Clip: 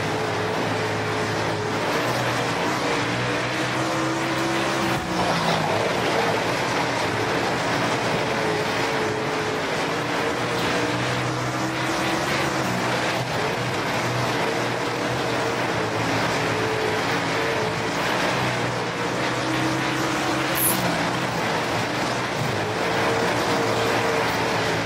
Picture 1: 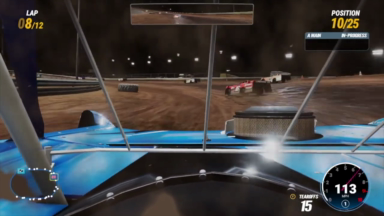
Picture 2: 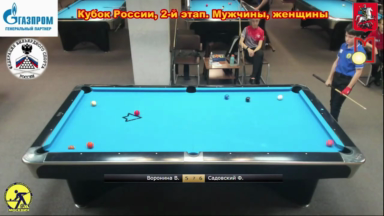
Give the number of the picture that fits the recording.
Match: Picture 1